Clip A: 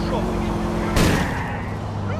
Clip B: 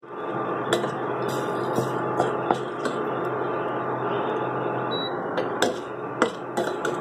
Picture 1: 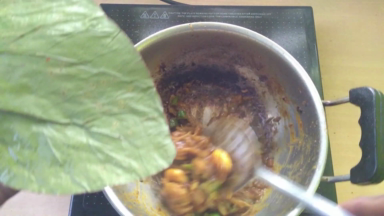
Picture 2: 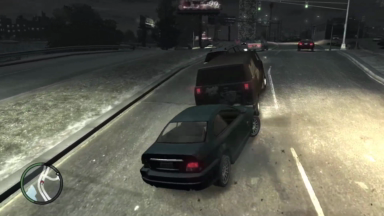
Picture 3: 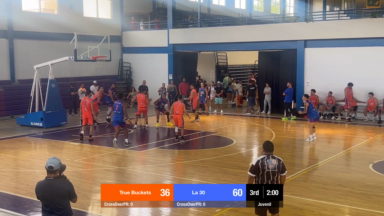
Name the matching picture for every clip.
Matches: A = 2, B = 1